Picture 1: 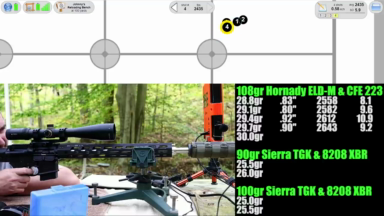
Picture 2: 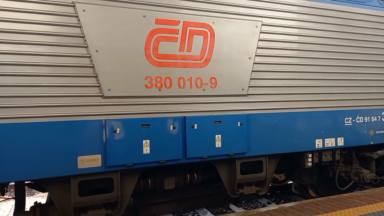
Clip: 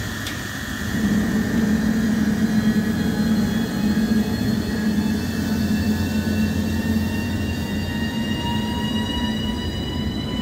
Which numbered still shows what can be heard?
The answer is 2